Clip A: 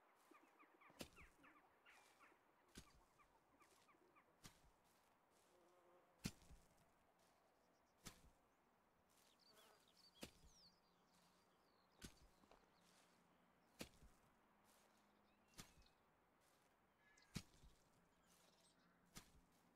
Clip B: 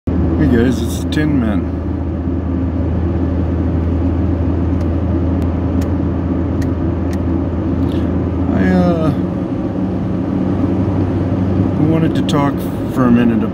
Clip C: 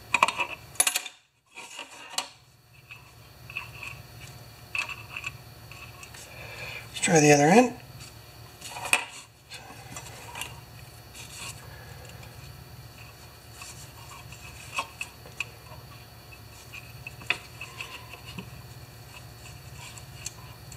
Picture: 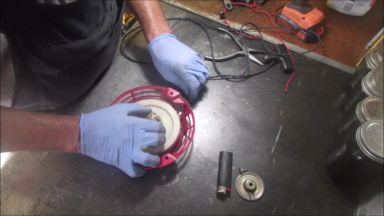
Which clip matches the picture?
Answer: C